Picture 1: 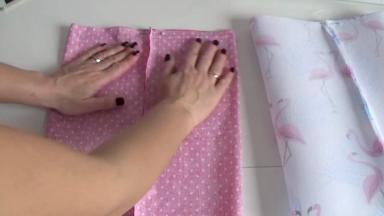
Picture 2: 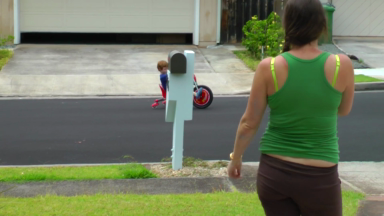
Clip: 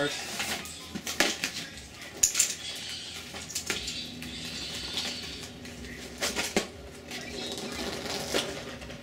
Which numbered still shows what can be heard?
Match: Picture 2